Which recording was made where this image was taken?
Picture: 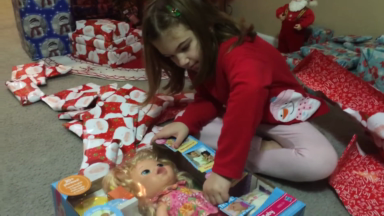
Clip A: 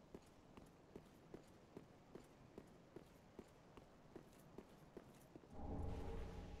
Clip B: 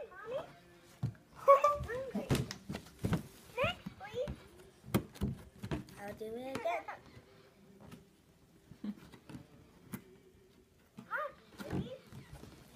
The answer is B